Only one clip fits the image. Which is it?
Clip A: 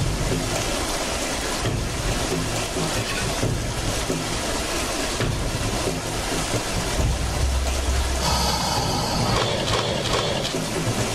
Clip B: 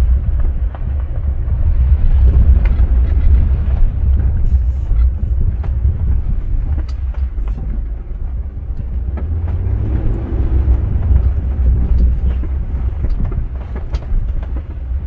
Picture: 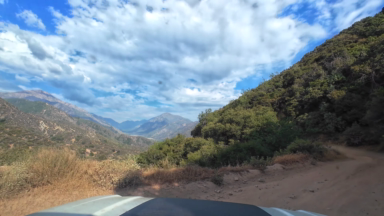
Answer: B